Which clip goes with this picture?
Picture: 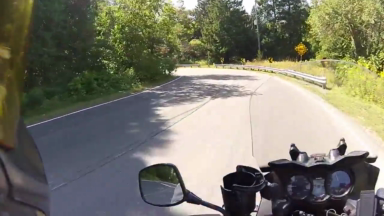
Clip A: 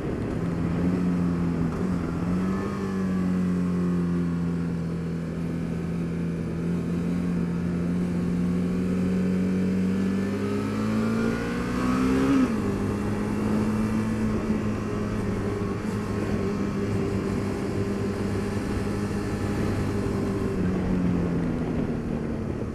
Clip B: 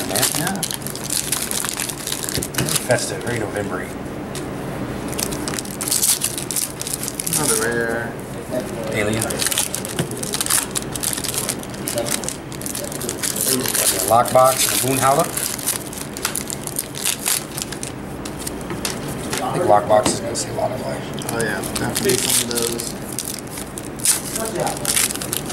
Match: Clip A